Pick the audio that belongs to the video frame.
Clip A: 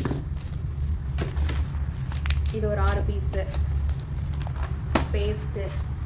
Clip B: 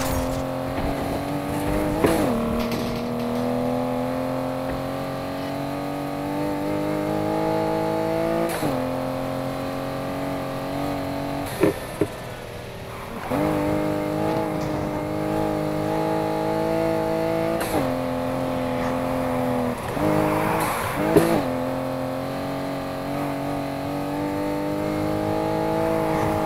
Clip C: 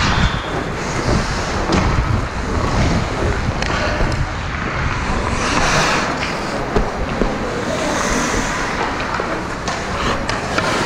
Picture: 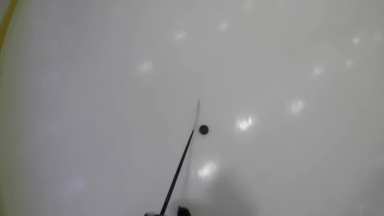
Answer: C